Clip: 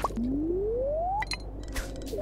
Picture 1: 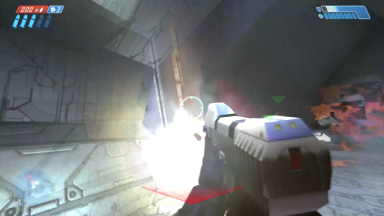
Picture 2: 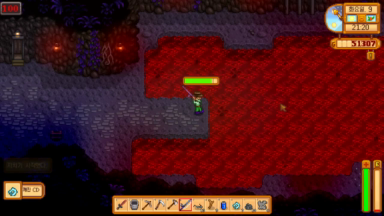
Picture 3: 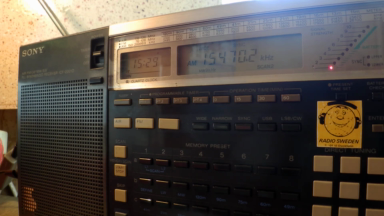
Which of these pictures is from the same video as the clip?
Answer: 2